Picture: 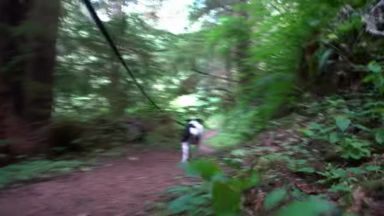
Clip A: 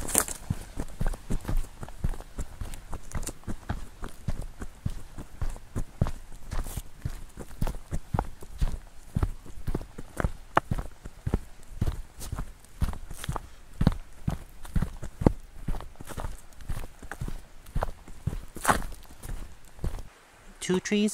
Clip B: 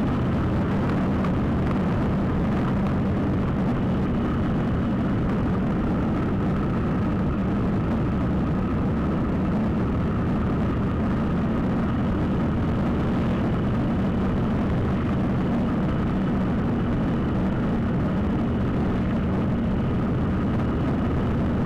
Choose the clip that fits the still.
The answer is A